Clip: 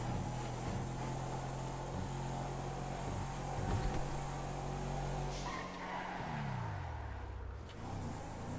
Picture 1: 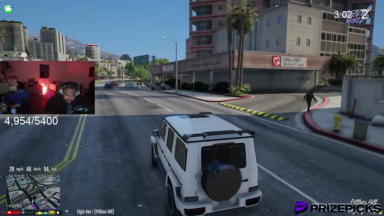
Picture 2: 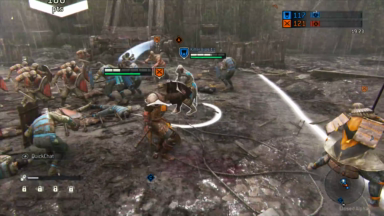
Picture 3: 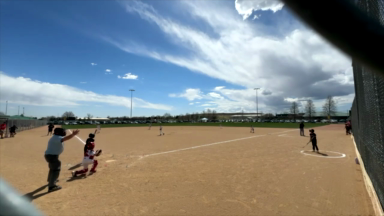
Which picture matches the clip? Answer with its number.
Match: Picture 1